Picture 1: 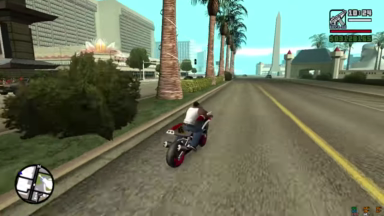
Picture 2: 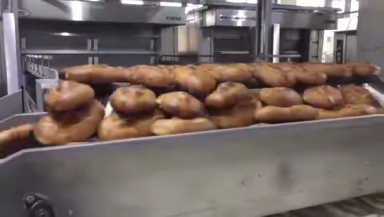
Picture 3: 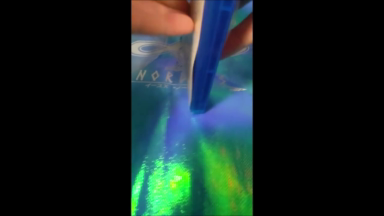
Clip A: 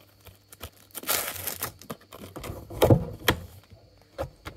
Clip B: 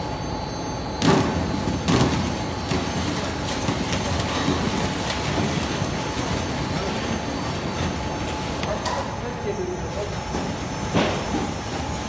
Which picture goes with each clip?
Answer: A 3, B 2